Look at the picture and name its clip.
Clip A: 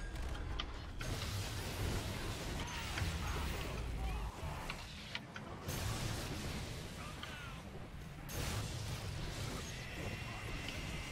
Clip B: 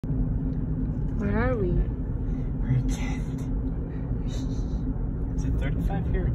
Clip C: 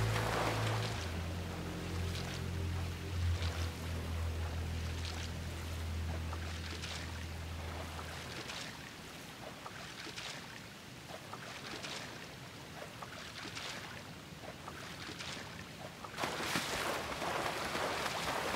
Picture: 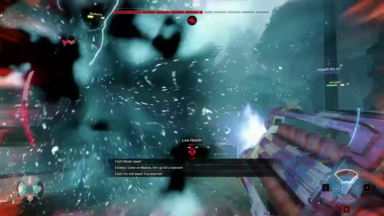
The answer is A